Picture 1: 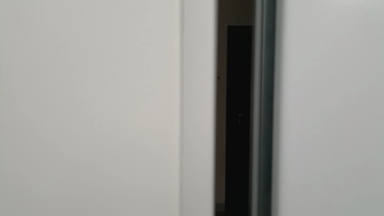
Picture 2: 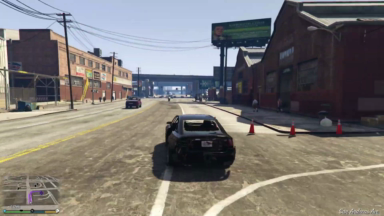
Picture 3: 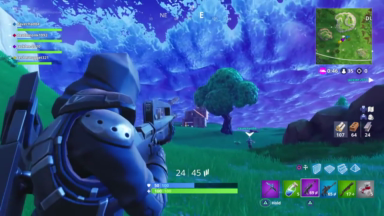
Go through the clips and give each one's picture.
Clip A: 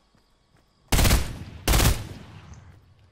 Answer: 3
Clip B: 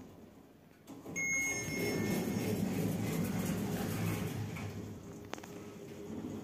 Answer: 1